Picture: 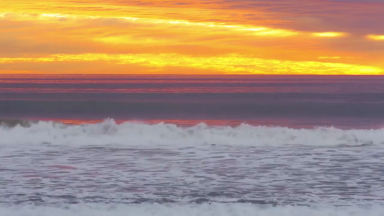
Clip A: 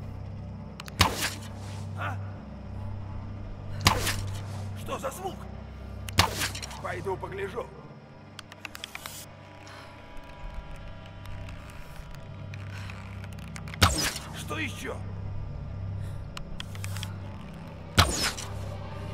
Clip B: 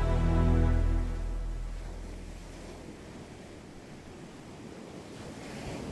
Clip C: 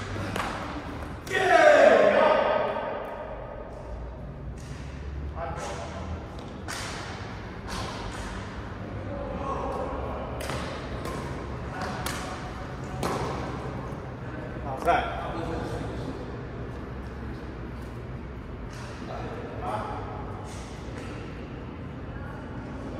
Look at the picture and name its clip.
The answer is B